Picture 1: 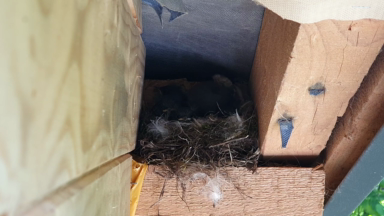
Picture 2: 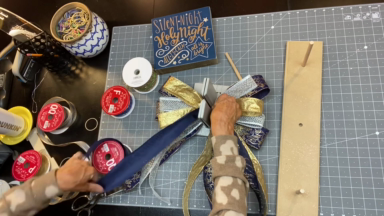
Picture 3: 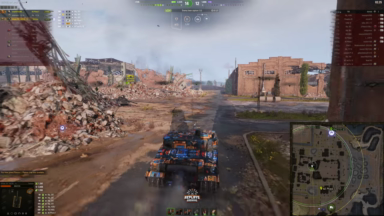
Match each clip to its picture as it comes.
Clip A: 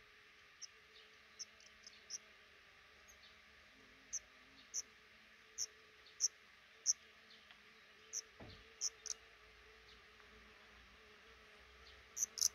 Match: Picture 1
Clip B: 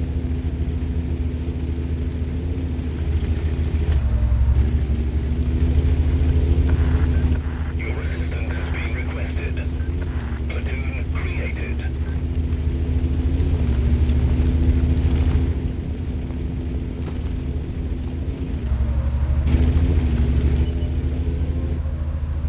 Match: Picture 3